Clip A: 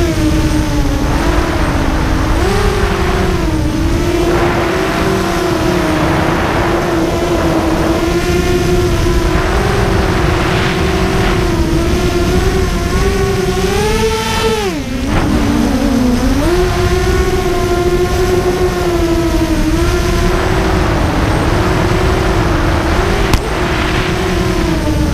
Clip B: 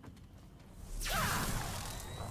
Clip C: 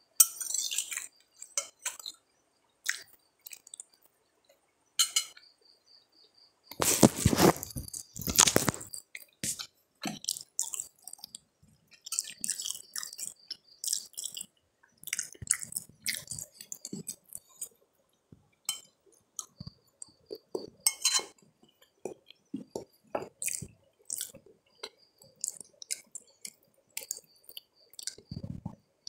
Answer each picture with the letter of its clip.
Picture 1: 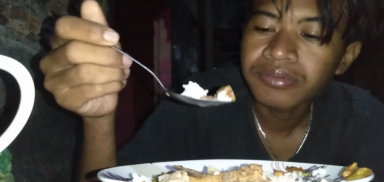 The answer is C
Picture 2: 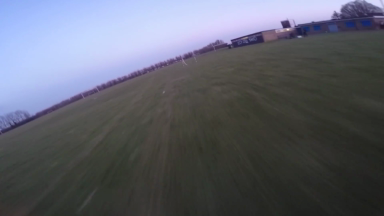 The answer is A